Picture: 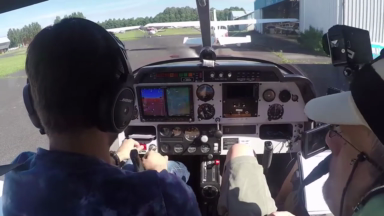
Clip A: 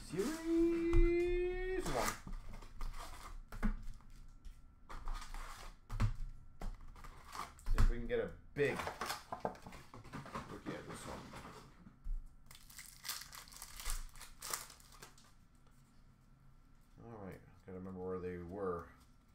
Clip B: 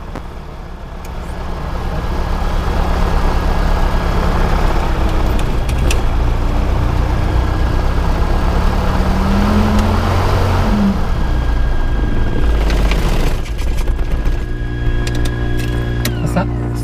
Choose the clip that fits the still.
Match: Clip B